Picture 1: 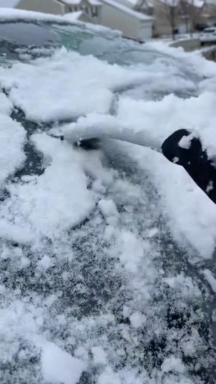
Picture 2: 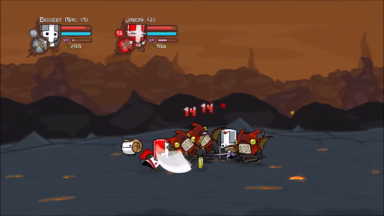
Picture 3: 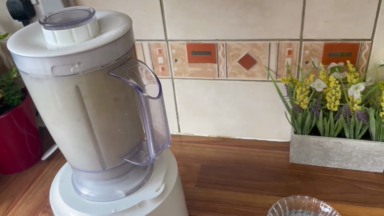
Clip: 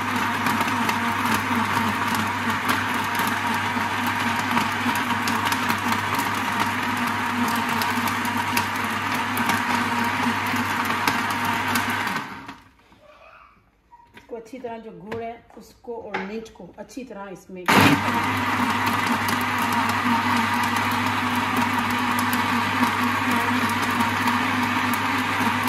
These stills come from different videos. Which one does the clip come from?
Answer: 3